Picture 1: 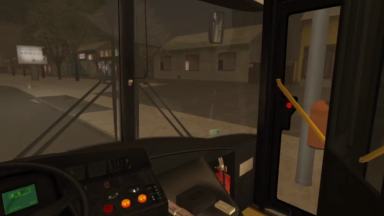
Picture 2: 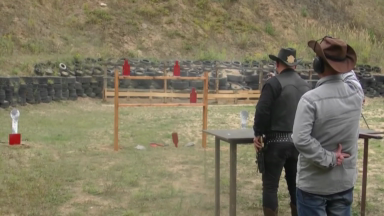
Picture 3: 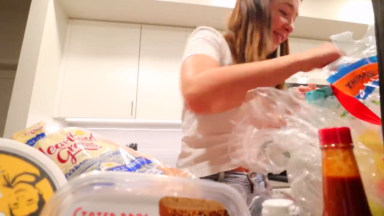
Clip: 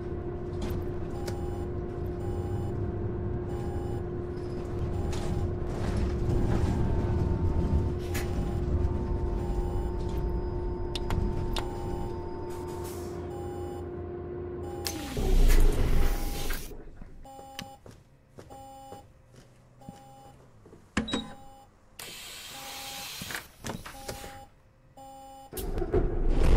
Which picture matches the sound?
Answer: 1